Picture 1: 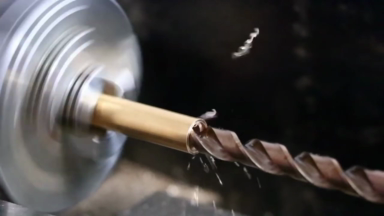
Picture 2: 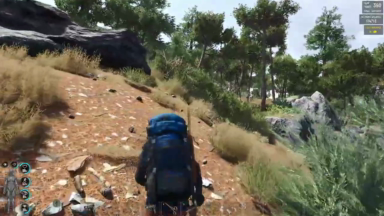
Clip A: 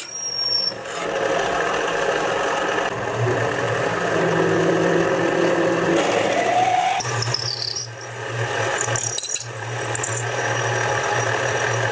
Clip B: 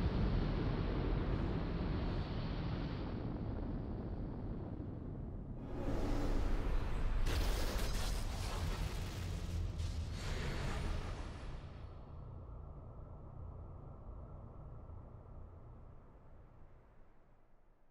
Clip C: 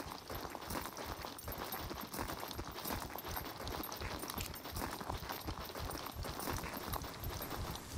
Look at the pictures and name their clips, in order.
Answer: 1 A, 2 C